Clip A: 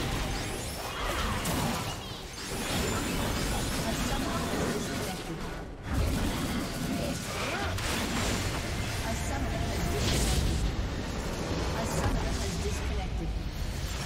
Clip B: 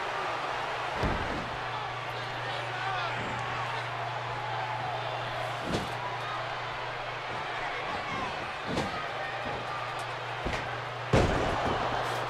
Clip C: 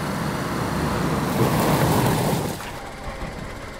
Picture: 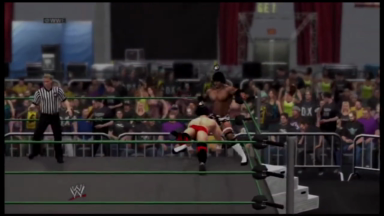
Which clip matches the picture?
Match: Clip B